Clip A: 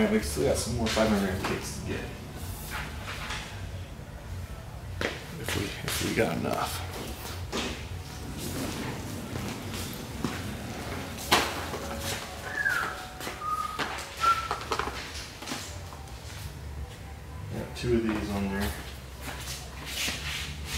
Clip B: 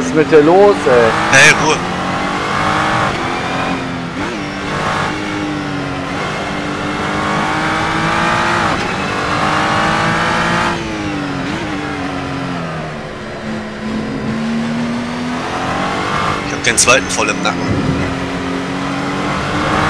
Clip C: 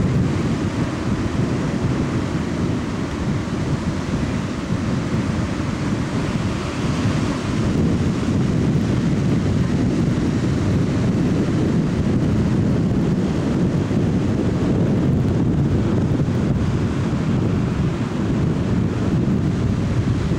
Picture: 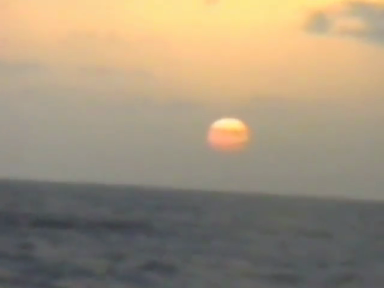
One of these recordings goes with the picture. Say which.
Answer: C